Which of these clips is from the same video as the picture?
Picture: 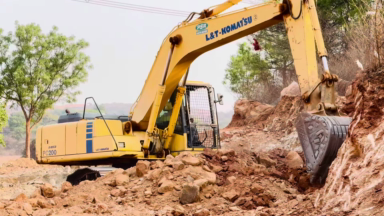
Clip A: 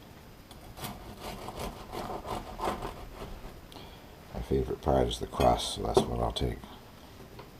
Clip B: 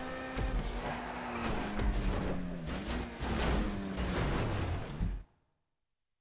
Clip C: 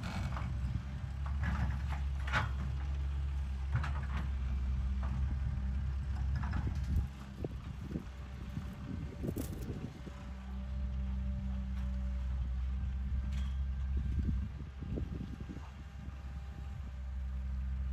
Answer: C